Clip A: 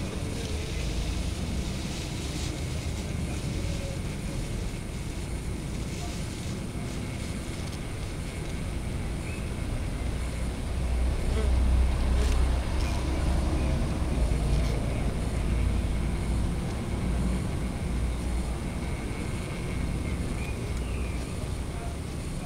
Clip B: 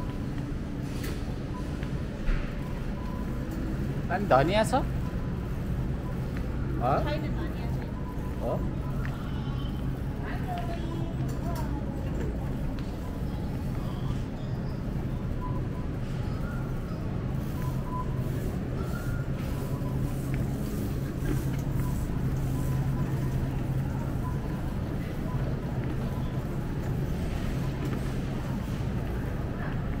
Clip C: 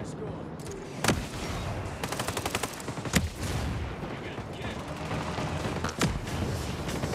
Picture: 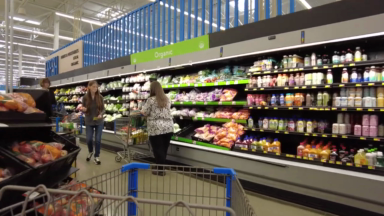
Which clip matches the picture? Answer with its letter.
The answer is B